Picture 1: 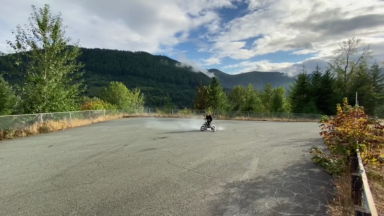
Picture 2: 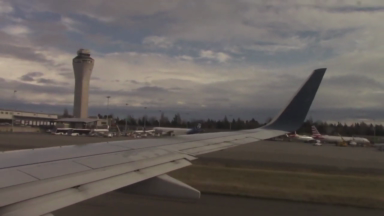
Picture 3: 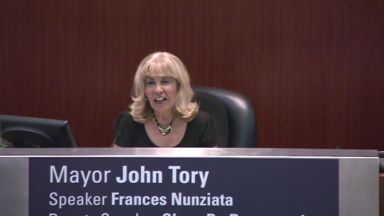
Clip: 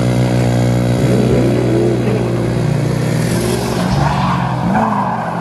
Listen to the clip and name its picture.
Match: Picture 1